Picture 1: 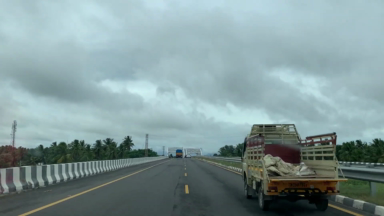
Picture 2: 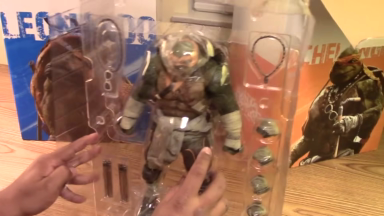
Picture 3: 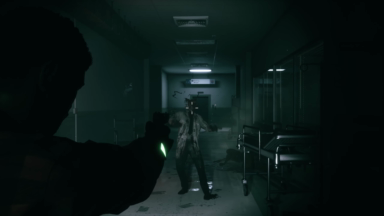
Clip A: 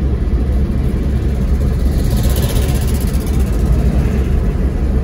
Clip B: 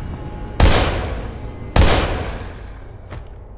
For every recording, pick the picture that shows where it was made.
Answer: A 1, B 3